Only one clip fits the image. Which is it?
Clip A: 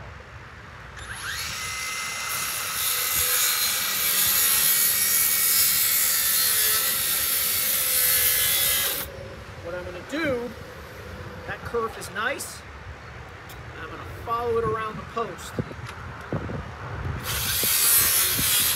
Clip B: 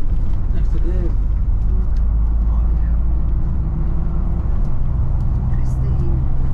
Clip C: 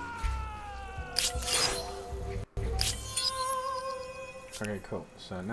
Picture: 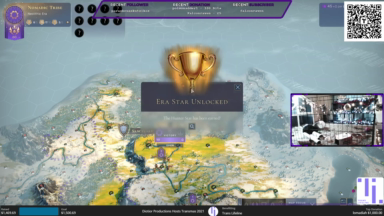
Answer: C